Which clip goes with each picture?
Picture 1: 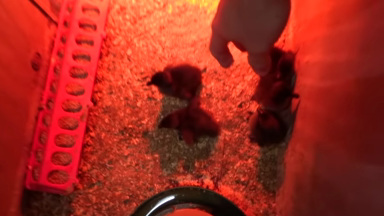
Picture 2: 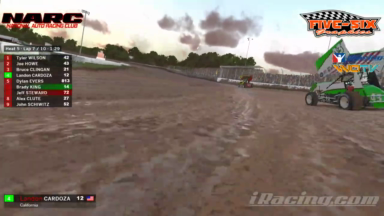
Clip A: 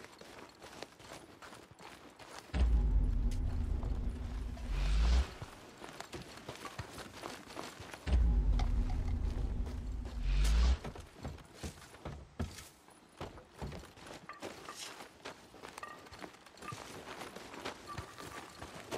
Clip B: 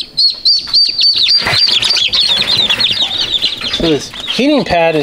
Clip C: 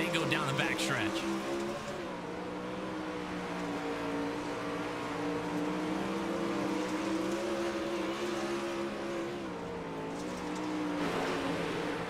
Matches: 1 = B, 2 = C